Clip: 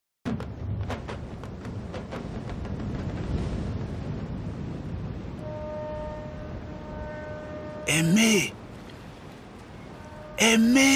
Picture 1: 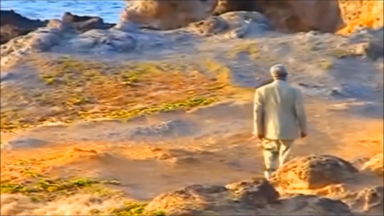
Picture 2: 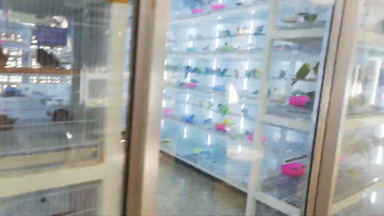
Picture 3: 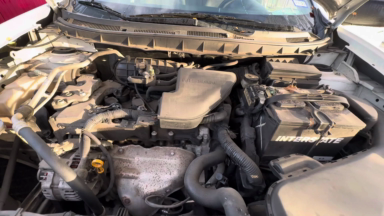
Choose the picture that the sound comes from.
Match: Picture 1